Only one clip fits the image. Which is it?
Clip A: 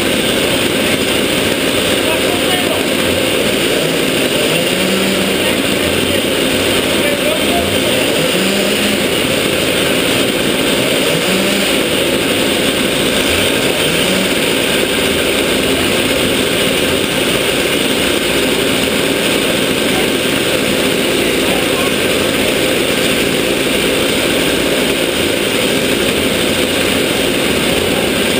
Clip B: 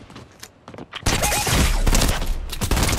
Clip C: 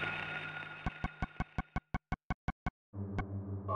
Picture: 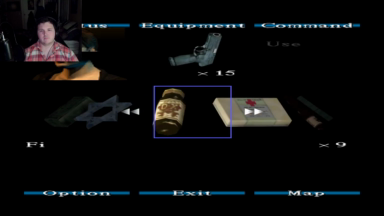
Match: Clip C